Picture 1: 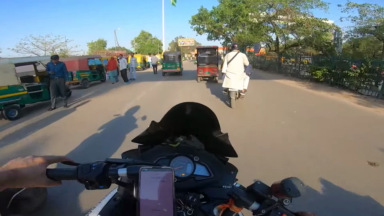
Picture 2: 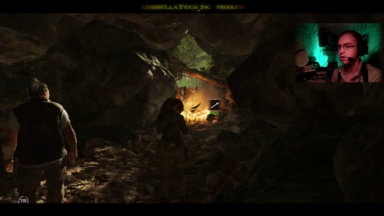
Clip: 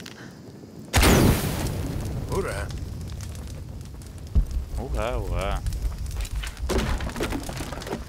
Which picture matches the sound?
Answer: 2